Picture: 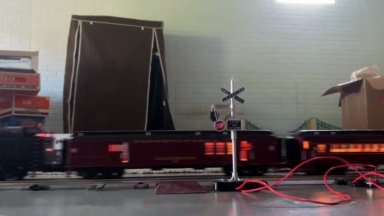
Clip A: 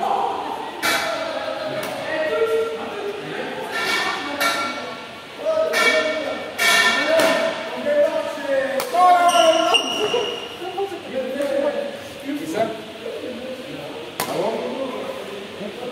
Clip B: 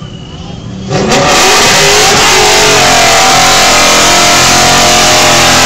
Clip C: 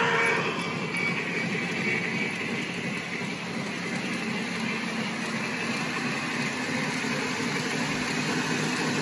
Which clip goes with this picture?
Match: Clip C